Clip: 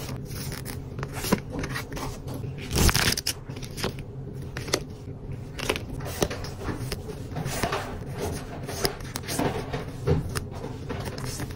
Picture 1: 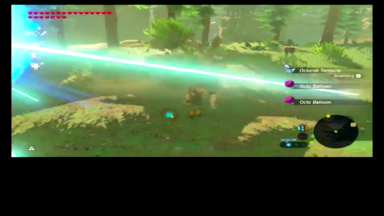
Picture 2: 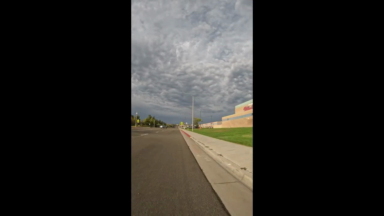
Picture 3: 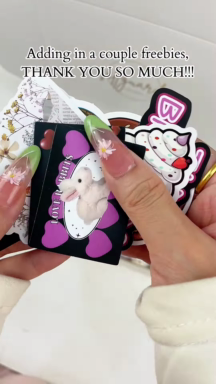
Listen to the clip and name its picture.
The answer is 3